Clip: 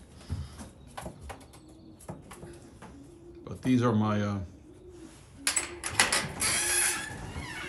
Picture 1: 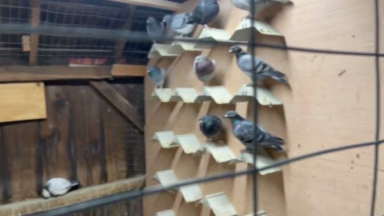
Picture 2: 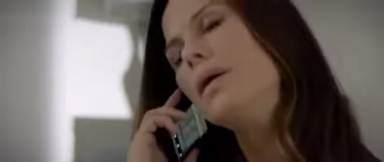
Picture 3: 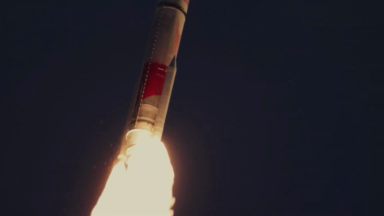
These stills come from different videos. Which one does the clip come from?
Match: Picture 1